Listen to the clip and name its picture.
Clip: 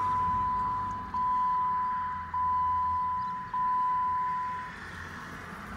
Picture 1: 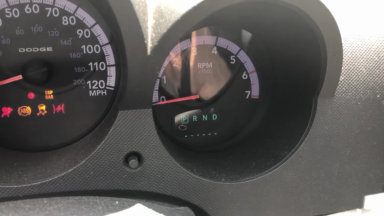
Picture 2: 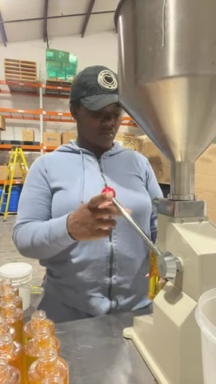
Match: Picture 1